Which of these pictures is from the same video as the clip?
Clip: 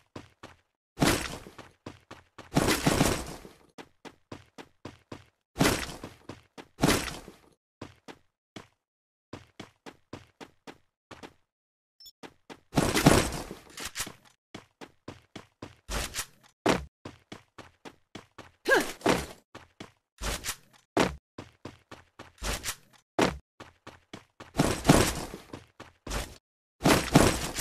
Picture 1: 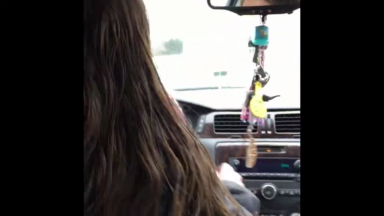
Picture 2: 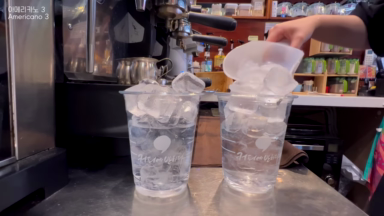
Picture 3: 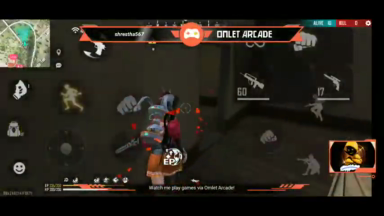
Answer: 3